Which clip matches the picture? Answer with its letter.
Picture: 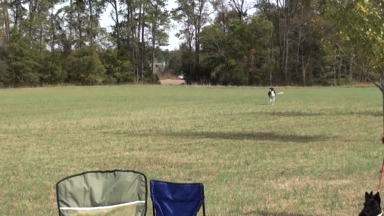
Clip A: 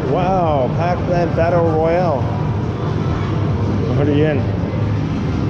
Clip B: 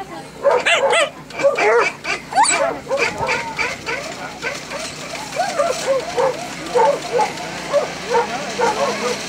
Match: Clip B